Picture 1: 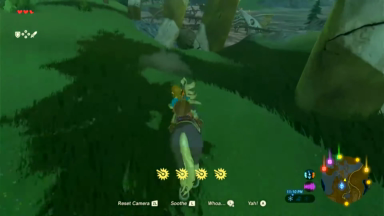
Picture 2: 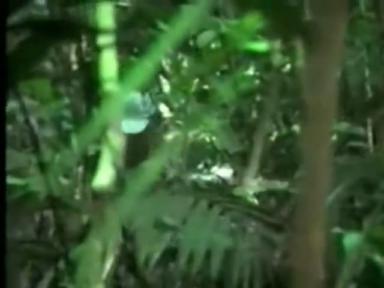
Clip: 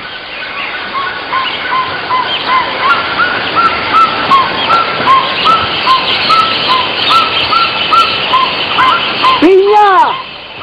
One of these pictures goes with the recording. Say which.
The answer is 2